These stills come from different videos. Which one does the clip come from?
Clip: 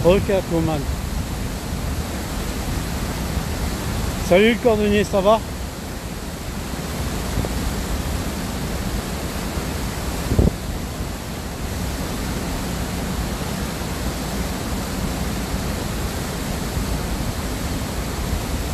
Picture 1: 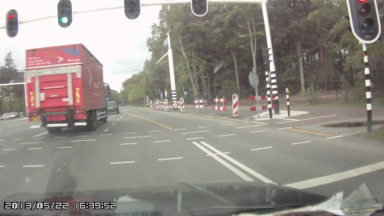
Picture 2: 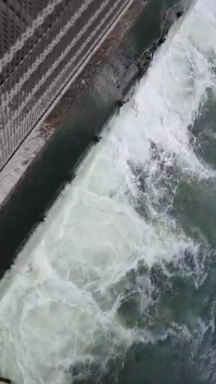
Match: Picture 2